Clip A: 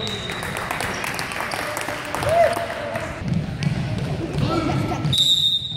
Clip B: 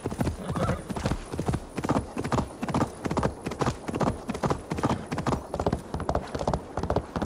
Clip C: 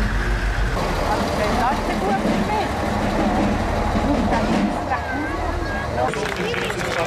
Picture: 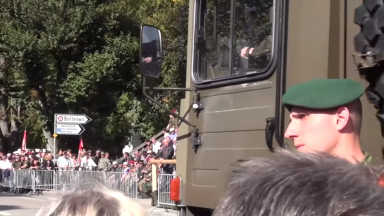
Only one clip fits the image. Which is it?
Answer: C